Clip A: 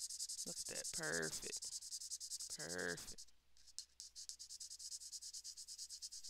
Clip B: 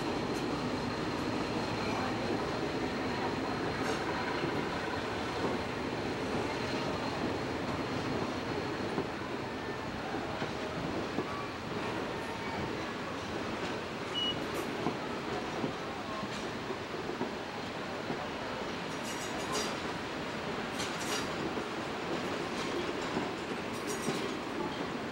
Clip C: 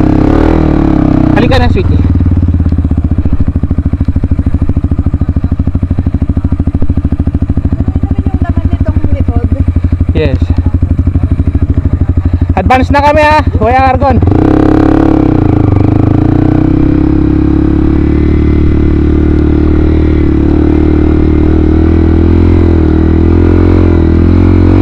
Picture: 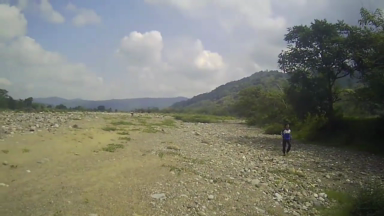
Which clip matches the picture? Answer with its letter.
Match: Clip C